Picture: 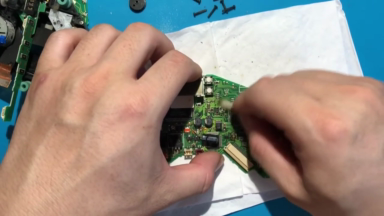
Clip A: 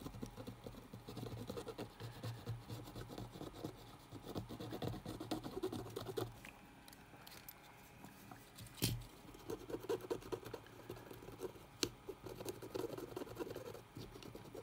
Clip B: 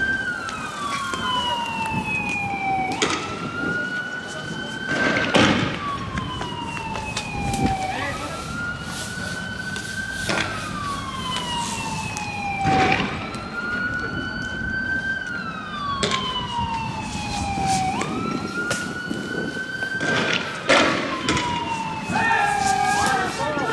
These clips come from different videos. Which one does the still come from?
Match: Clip A